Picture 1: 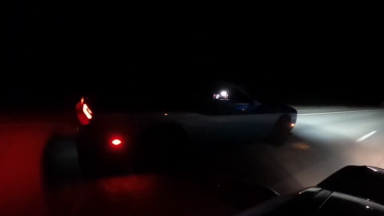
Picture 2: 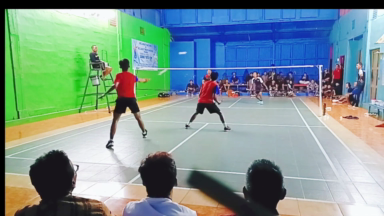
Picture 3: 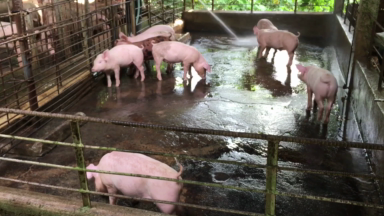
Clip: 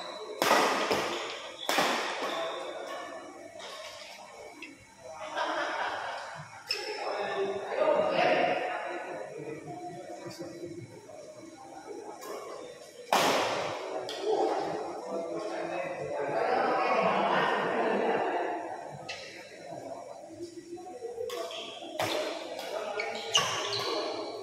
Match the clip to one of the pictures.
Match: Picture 2